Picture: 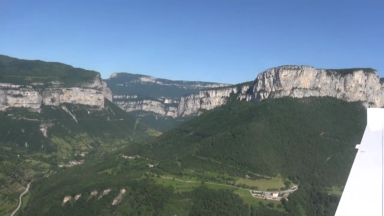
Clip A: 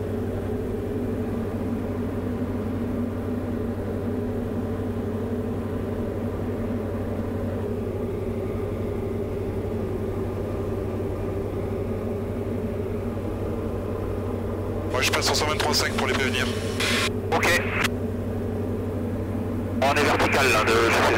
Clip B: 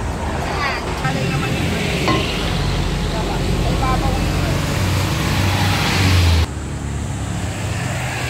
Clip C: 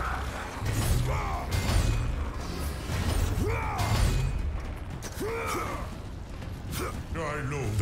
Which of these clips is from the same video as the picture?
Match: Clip A